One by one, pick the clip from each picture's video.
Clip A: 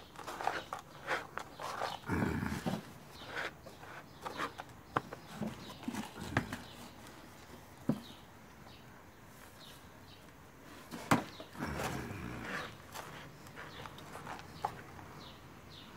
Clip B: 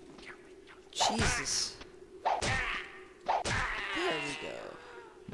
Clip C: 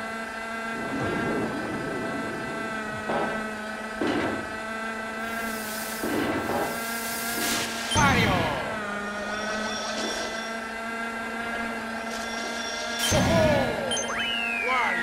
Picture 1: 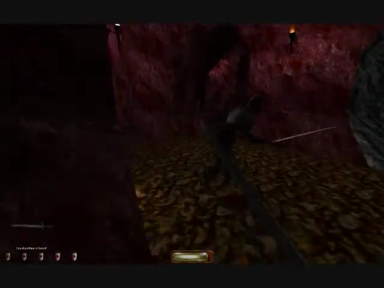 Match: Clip B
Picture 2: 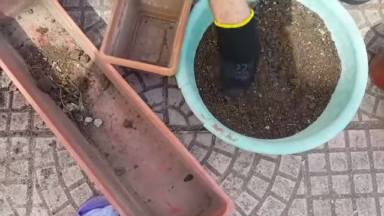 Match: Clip A